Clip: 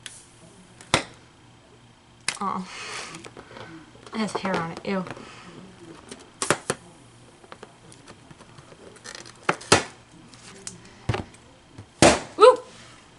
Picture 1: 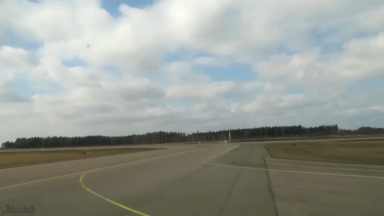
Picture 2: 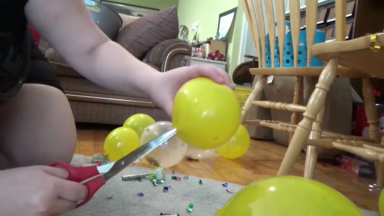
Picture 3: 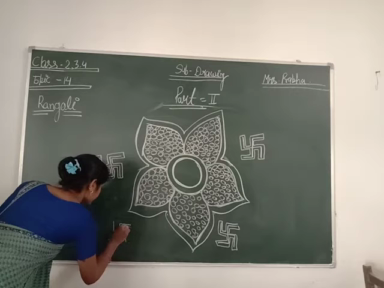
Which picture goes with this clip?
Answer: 2